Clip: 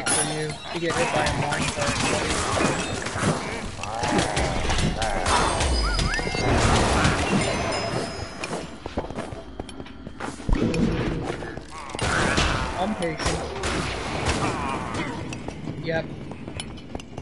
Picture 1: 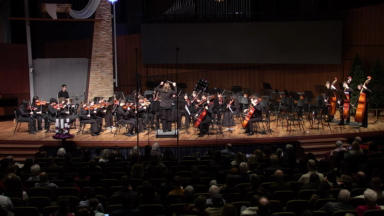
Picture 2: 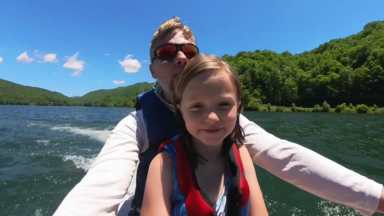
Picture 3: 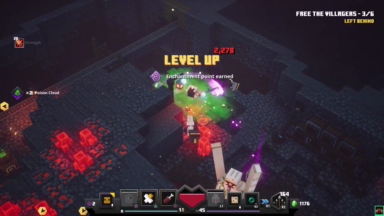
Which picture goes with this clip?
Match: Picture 3